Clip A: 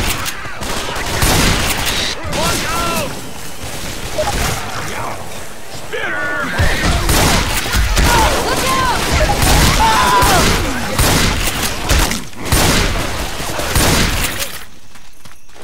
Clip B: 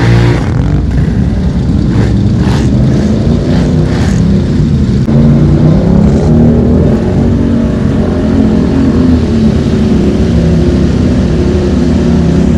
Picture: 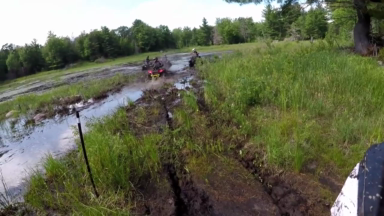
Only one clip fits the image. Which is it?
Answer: B